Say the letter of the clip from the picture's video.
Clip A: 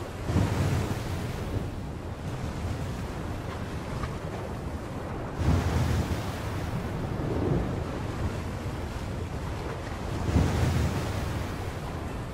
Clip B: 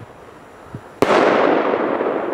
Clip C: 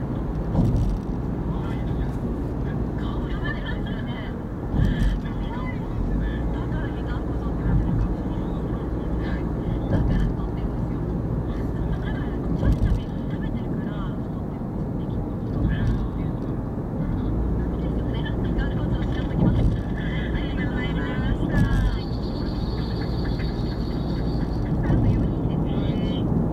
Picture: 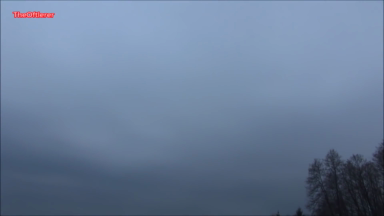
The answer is B